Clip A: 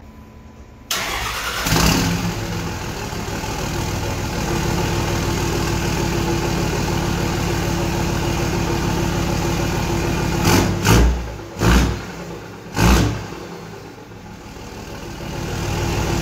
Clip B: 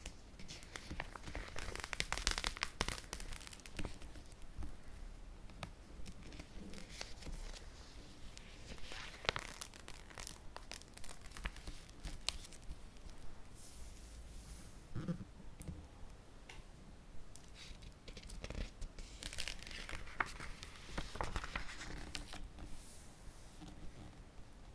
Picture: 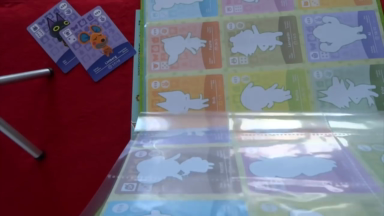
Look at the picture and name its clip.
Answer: B